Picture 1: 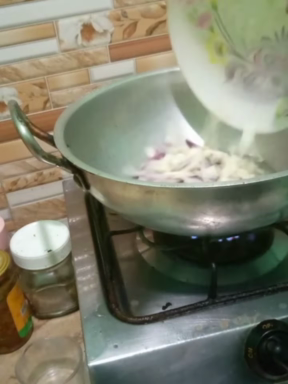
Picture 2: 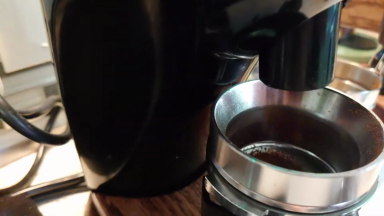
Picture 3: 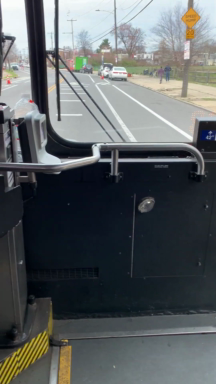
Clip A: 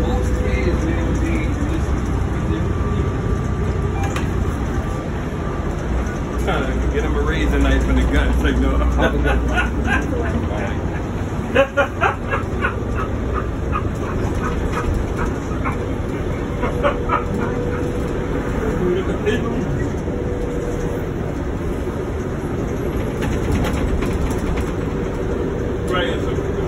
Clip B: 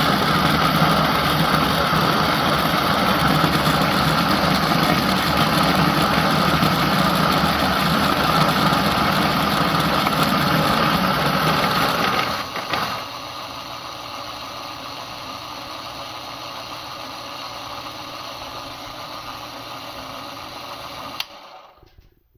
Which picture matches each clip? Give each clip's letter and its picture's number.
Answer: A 3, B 2